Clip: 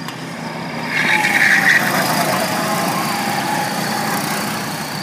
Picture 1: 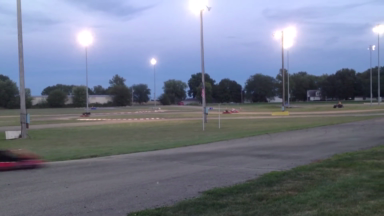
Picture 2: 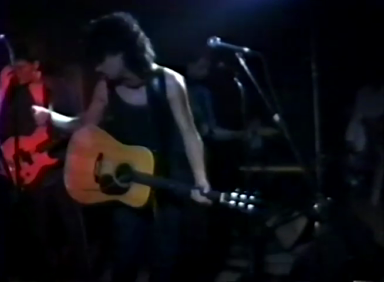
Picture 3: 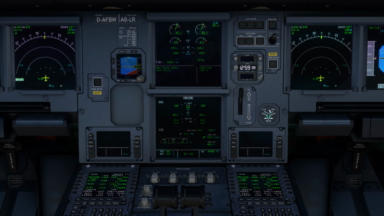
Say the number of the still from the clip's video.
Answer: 1